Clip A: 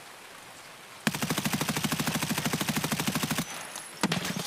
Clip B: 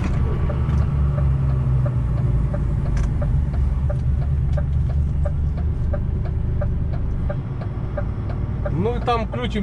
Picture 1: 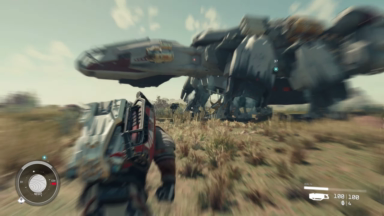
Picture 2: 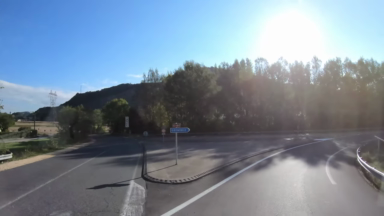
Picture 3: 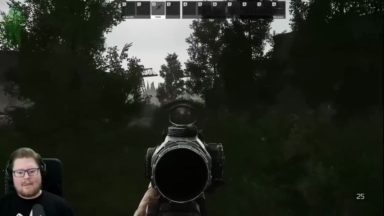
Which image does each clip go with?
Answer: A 3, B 2